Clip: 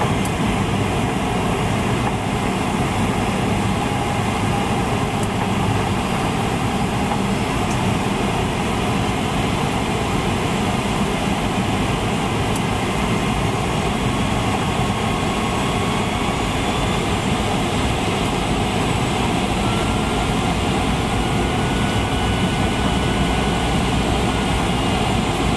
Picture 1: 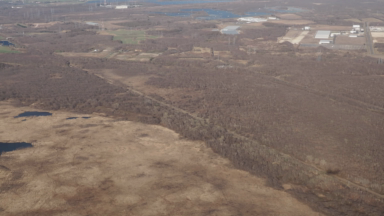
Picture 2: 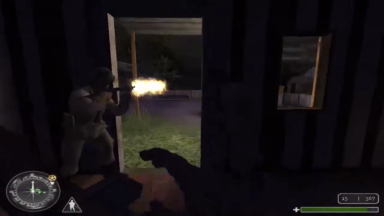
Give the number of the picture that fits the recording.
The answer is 1